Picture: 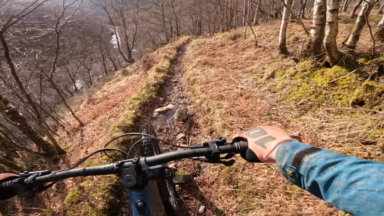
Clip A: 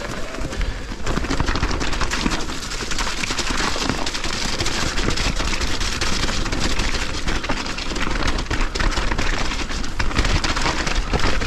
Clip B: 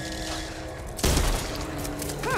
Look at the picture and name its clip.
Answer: A